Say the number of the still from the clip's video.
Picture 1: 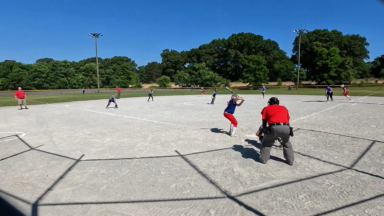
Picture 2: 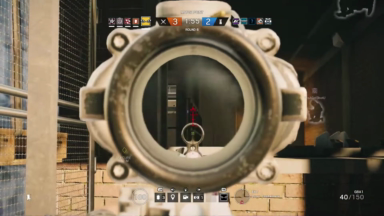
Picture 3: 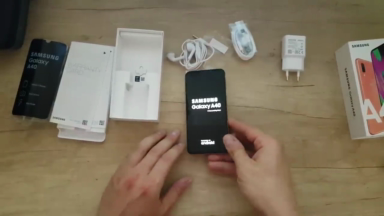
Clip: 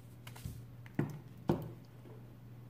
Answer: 3